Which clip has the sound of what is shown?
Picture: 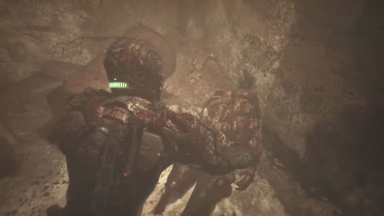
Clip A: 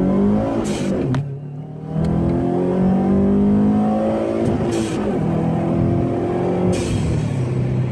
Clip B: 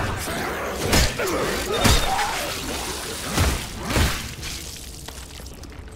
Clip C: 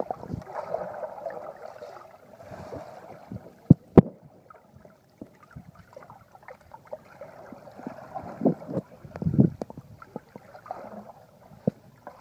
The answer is B